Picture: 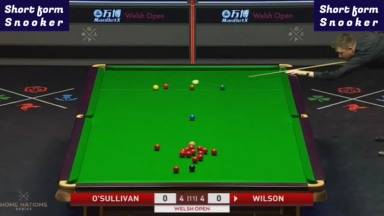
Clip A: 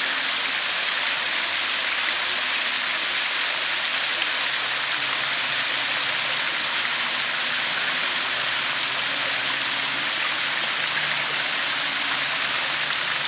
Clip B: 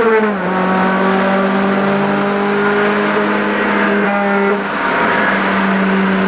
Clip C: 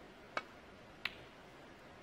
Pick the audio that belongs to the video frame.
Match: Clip C